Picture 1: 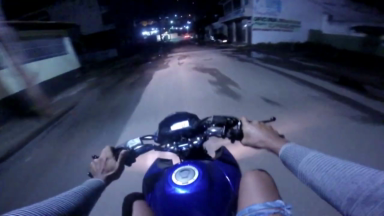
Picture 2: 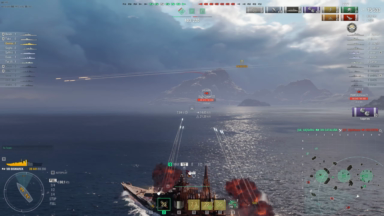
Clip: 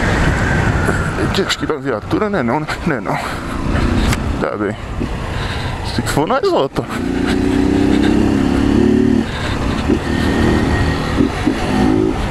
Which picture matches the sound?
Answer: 1